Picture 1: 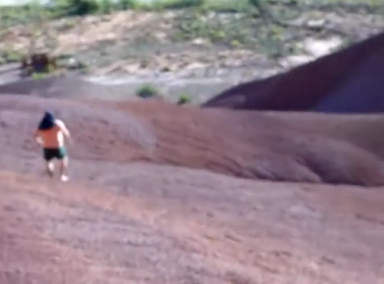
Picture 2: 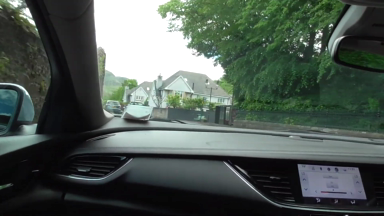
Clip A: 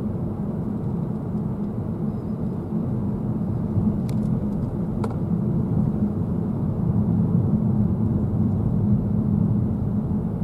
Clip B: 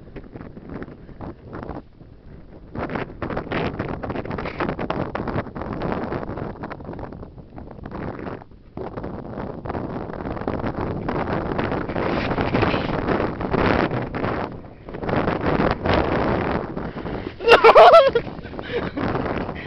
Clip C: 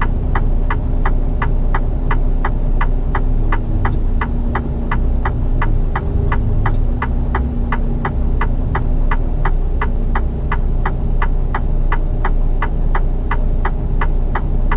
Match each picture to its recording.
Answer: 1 B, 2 A